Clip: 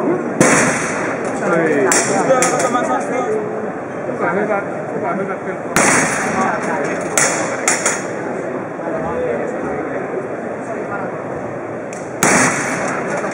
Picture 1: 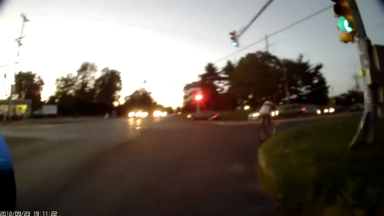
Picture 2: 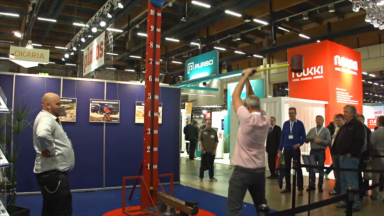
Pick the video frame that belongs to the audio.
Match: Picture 2